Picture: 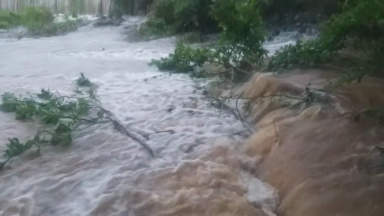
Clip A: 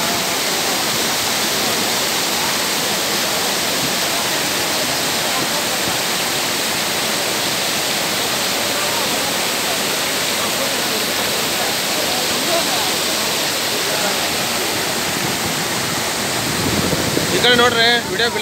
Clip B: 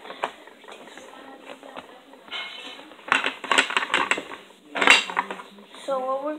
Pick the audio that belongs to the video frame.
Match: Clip A